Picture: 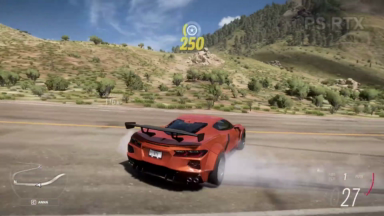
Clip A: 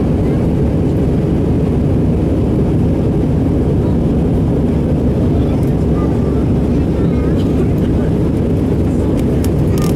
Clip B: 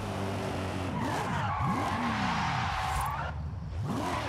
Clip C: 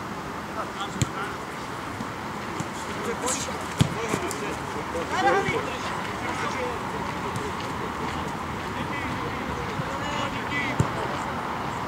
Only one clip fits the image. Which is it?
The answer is B